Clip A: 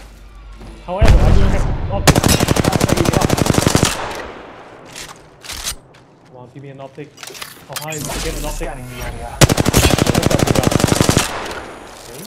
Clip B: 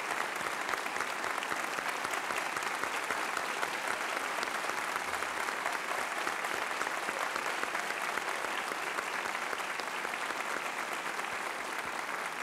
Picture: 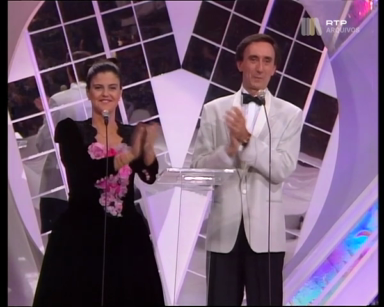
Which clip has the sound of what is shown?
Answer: B